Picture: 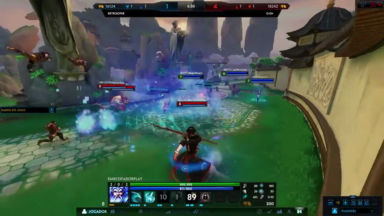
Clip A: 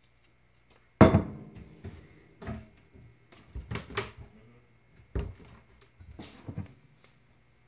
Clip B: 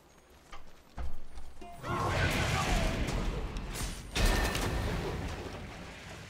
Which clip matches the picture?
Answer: B